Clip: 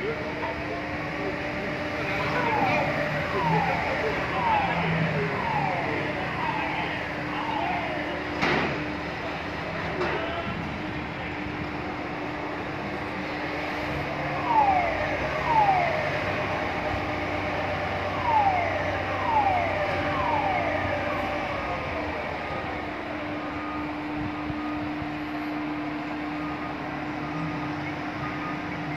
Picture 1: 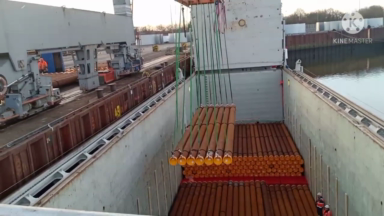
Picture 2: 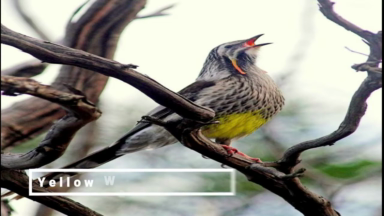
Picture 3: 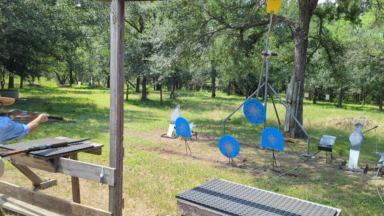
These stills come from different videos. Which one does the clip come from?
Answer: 1